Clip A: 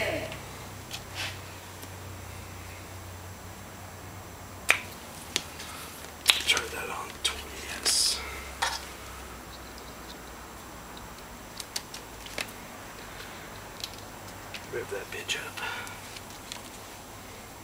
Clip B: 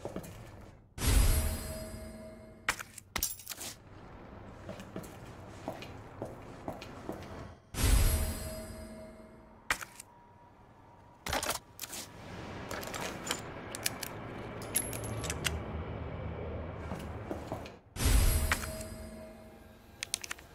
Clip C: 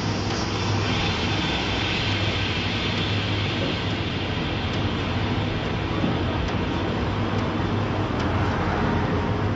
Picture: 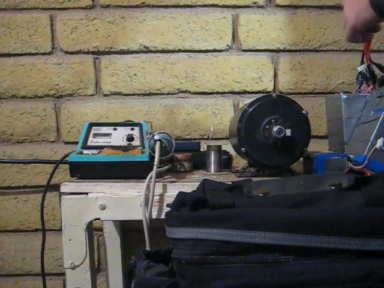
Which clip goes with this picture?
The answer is A